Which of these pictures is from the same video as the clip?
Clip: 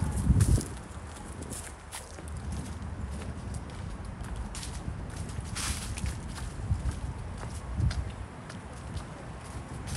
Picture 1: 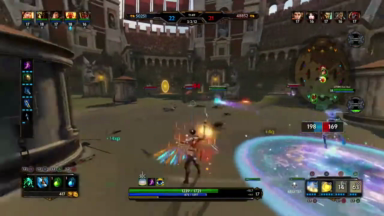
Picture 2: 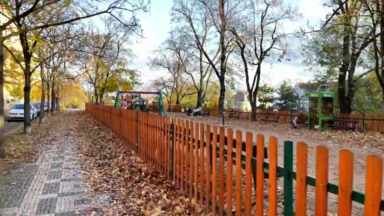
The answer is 2